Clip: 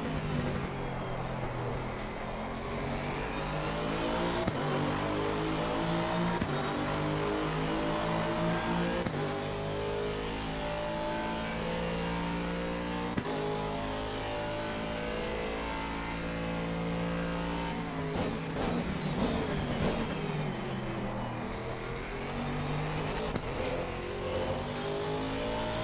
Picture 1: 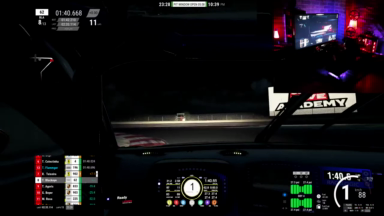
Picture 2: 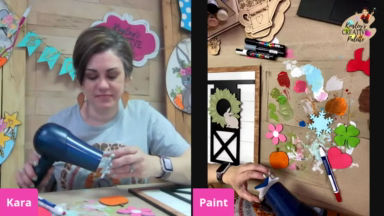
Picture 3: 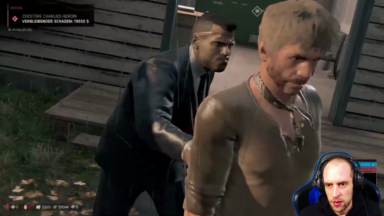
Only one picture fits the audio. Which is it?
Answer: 1